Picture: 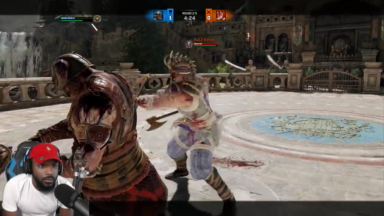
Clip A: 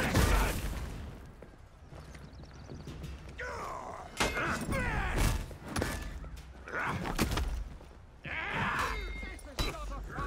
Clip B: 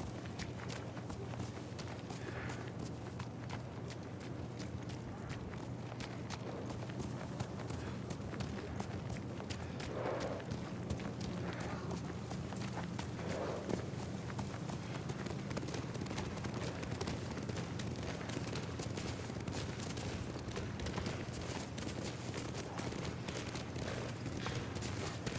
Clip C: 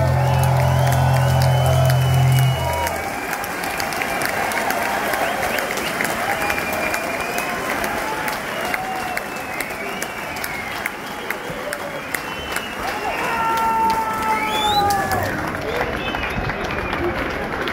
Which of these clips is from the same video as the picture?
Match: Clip A